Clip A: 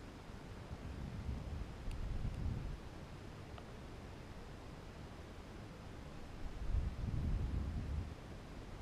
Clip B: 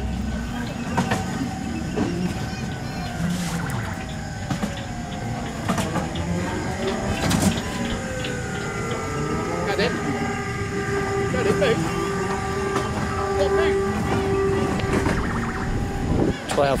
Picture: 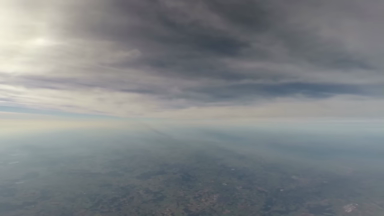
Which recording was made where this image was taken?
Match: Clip A